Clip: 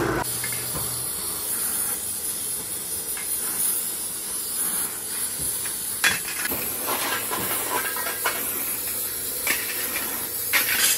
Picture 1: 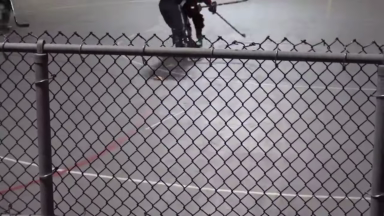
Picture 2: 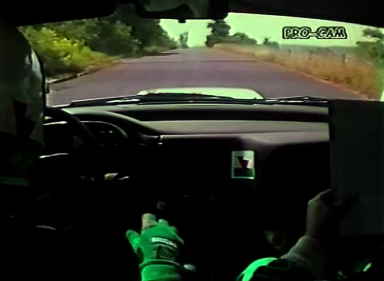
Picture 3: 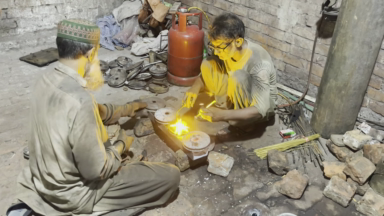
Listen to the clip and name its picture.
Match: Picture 3